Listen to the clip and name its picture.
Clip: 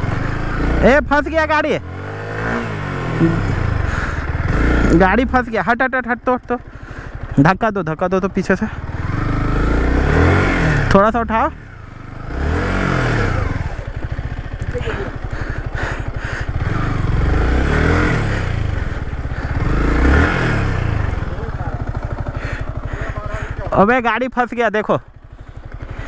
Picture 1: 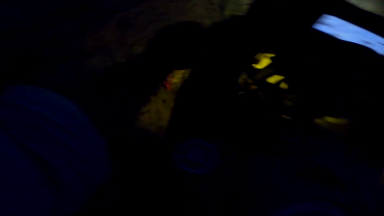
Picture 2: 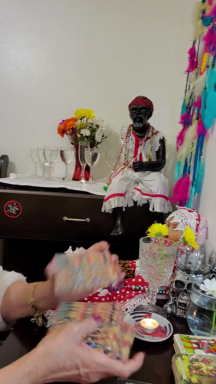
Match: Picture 1